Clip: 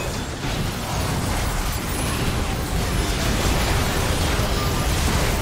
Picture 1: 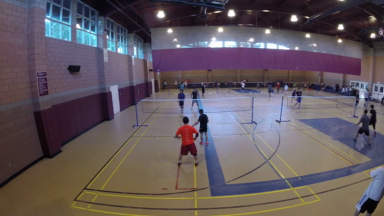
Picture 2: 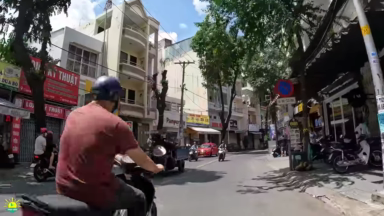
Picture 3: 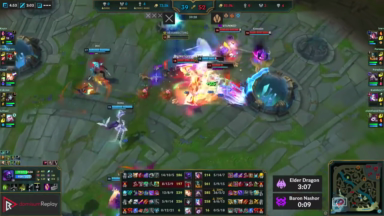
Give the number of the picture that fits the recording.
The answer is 3